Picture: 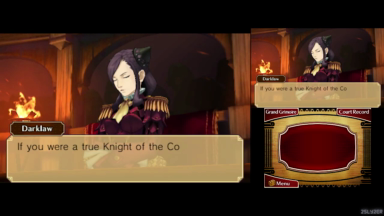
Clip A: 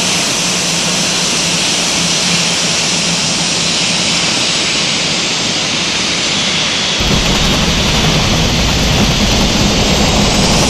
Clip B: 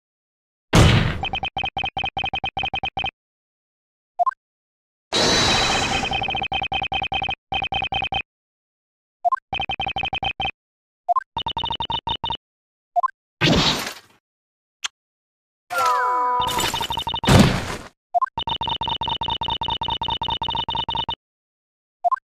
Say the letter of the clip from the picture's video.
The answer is B